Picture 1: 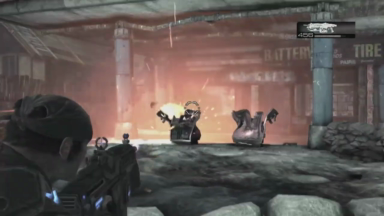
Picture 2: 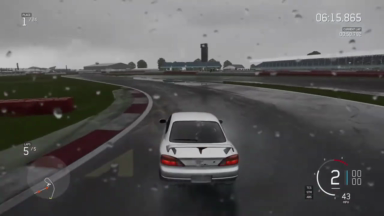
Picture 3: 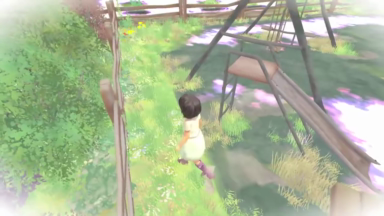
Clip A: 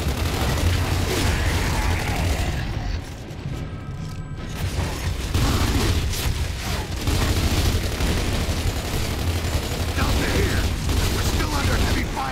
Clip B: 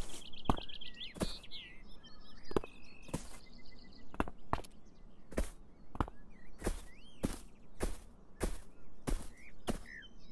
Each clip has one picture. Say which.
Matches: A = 1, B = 3